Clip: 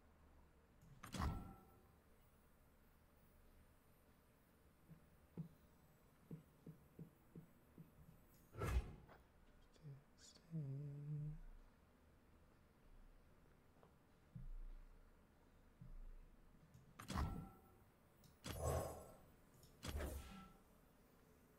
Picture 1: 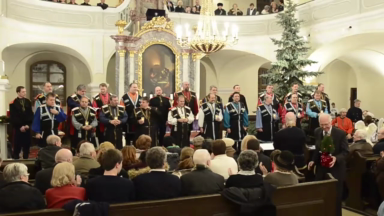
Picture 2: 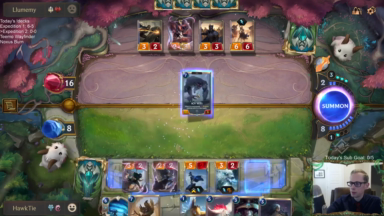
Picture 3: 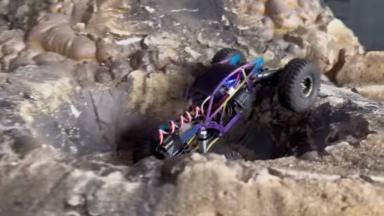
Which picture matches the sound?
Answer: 2